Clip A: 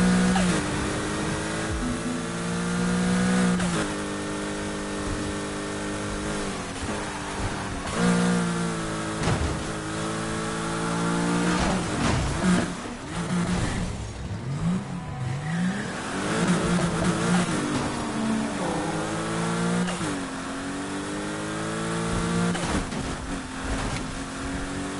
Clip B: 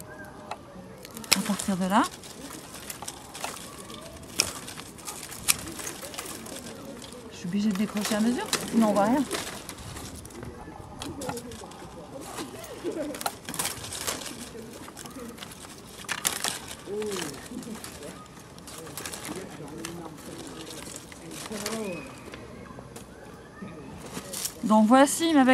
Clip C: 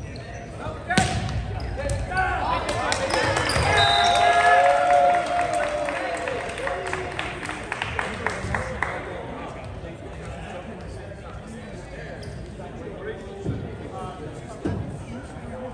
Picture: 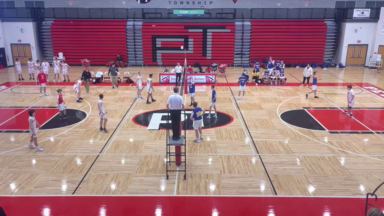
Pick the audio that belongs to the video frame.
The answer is C